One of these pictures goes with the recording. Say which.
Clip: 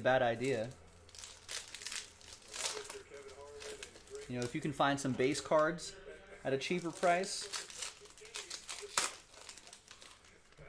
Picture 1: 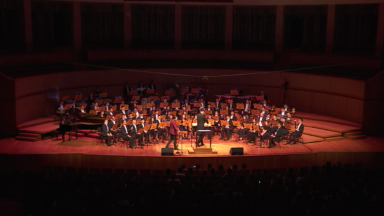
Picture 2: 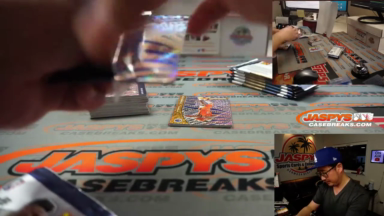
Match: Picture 2